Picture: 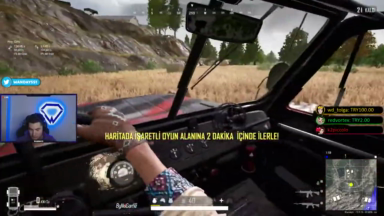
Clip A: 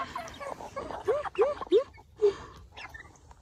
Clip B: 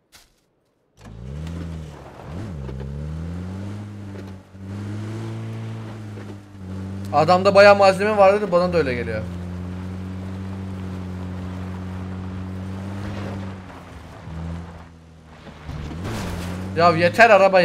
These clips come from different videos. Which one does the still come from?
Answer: B